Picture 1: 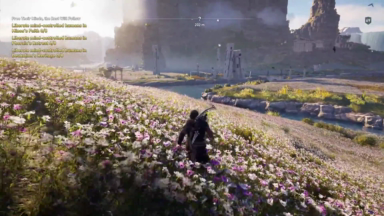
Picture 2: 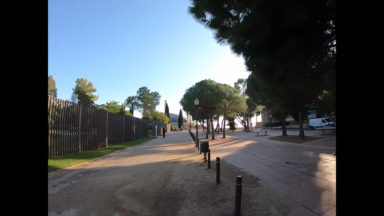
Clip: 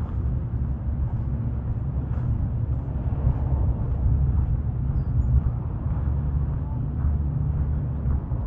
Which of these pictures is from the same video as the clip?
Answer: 2